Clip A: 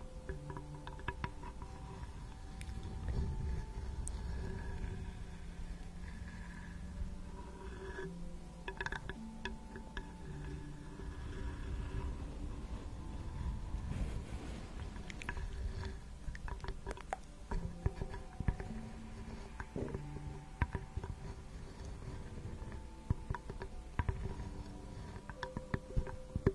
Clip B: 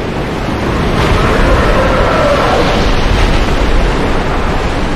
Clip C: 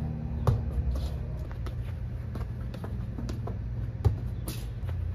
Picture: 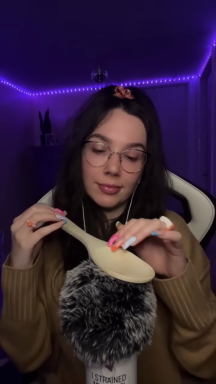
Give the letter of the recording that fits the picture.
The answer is A